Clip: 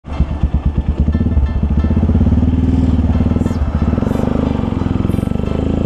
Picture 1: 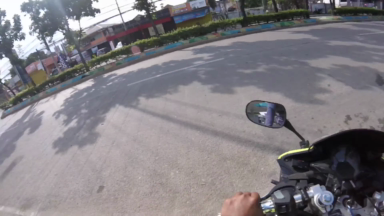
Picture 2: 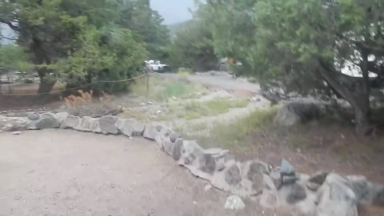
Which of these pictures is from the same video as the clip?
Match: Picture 1